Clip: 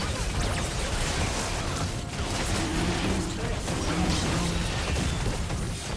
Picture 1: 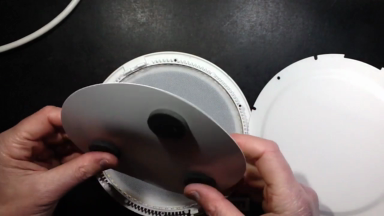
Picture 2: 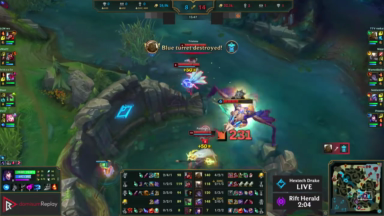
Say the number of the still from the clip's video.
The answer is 2